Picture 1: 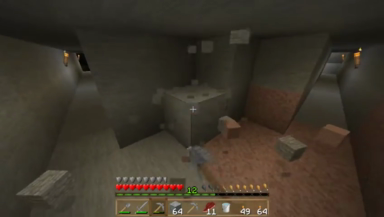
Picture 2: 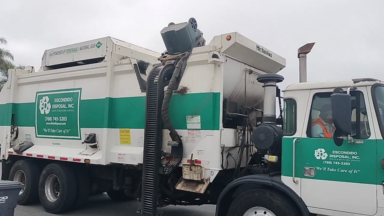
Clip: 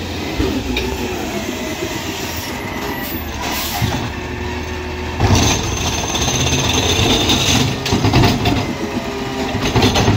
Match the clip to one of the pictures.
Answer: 2